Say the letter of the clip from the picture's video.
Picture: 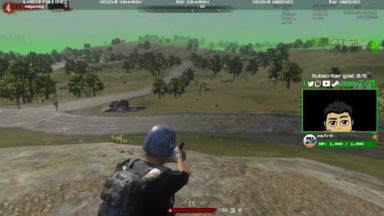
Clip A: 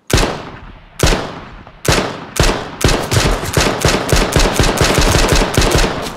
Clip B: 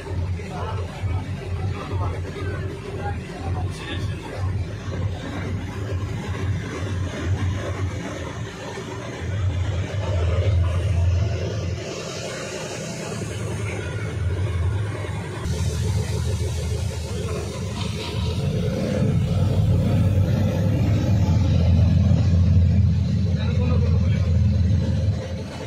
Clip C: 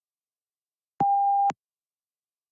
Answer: A